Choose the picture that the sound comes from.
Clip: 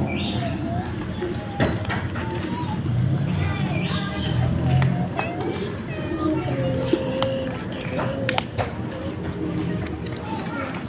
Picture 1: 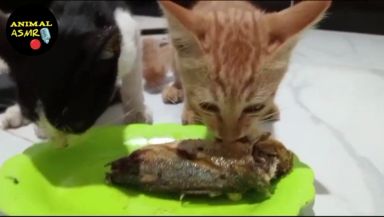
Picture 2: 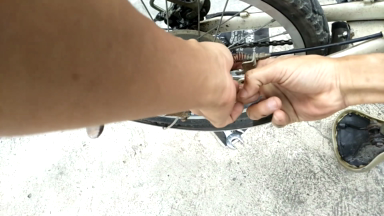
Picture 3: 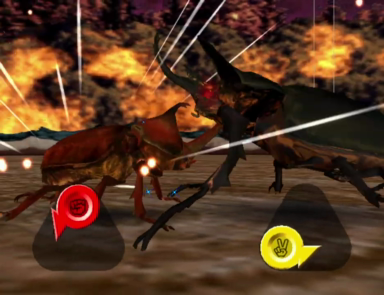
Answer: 1